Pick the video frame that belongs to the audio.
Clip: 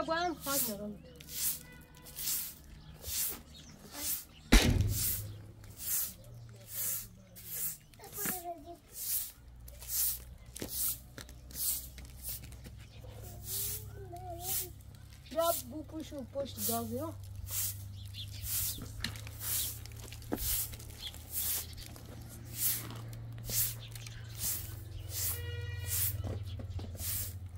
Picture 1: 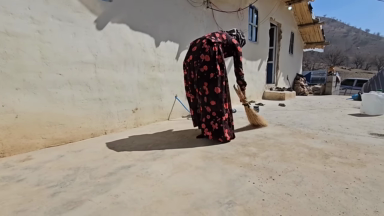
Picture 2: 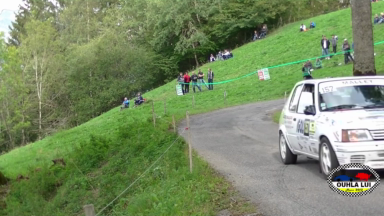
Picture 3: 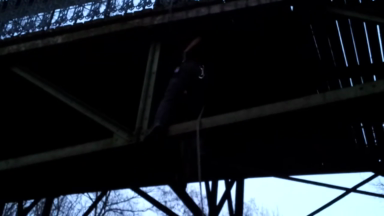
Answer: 1